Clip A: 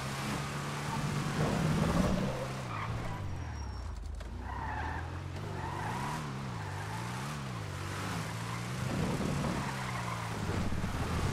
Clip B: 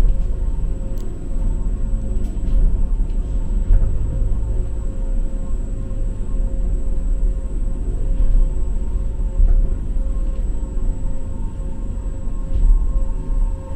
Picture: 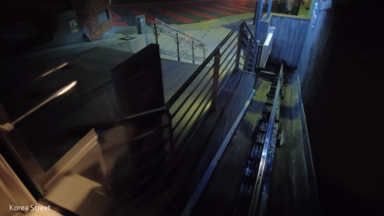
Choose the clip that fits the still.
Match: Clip B